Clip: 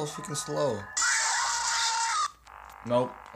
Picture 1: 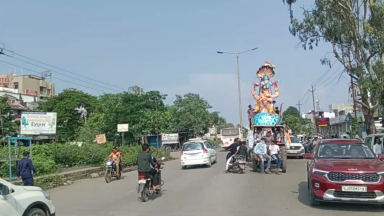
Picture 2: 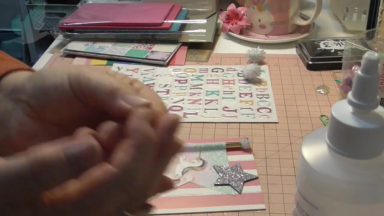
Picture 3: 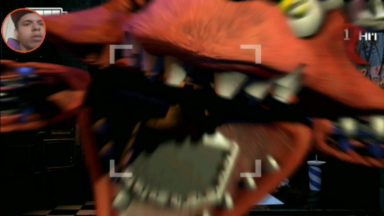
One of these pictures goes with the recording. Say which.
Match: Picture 3